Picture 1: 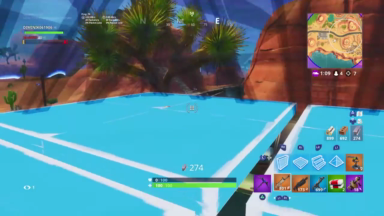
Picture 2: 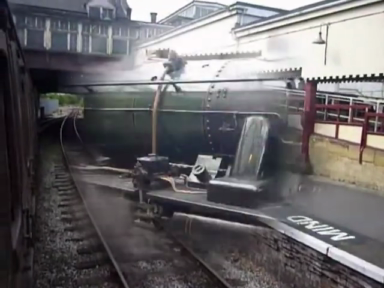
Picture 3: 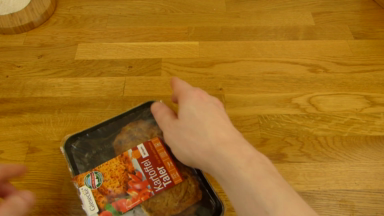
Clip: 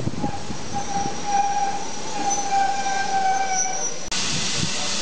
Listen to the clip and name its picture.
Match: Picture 2